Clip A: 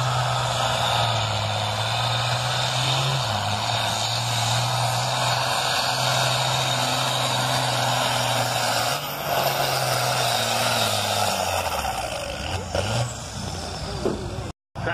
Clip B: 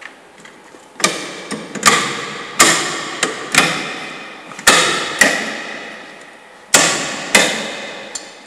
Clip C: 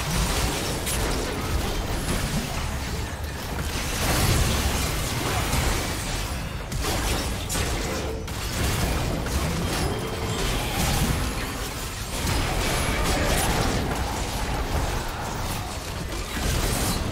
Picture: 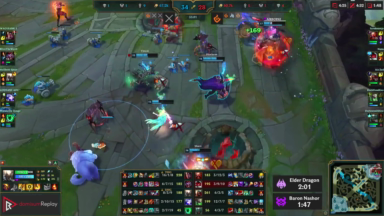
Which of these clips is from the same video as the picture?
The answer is C